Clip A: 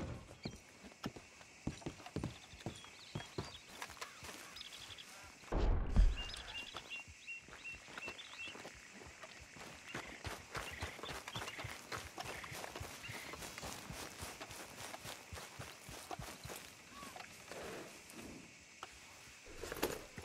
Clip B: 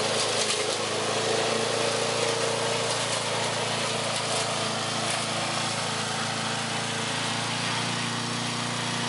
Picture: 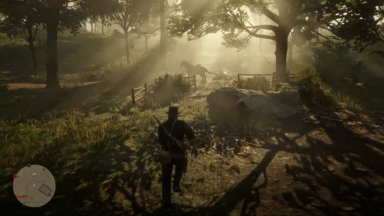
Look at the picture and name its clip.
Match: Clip A